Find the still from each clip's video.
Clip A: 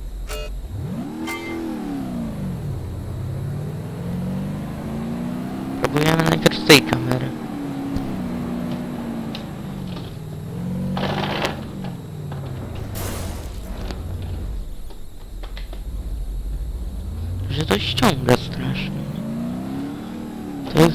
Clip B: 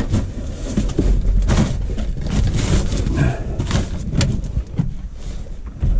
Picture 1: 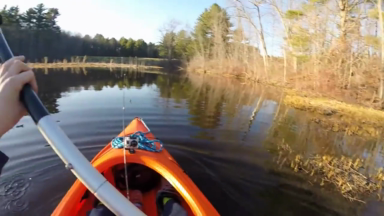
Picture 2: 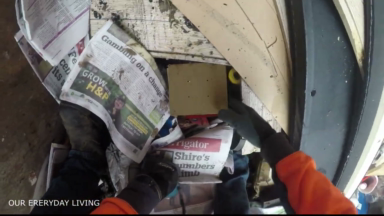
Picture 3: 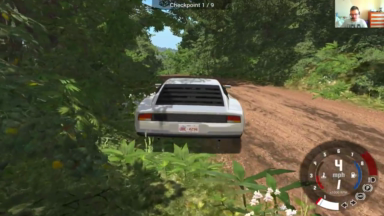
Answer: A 3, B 2